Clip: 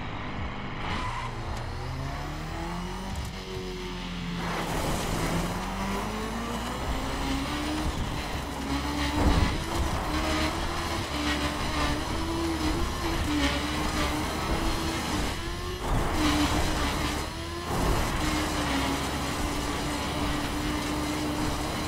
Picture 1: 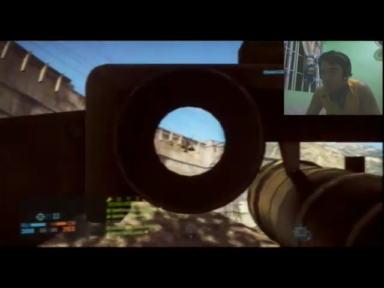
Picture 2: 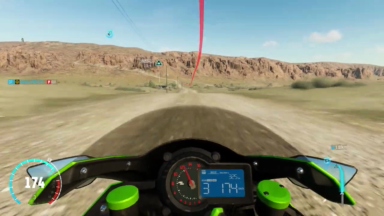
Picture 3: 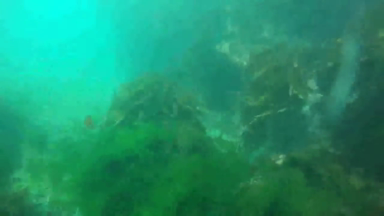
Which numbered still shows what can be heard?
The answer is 2